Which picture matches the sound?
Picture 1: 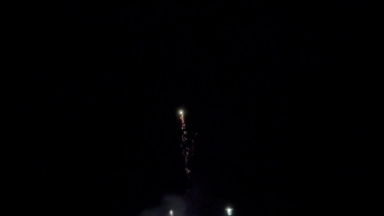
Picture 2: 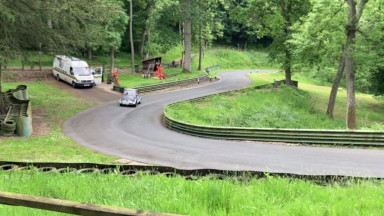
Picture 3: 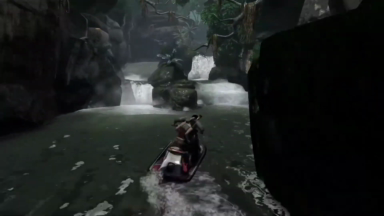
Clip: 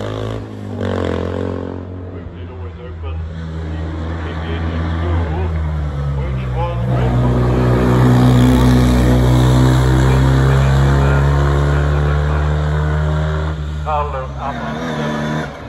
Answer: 2